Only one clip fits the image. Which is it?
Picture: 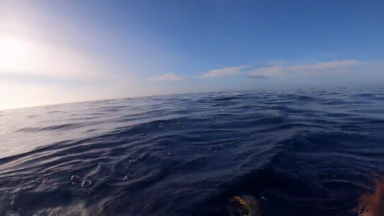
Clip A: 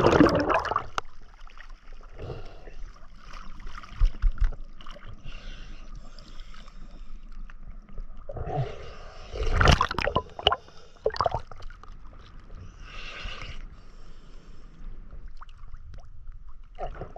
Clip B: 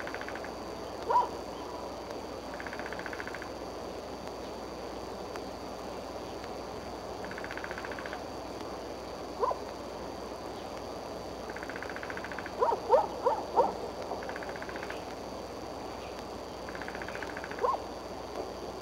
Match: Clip A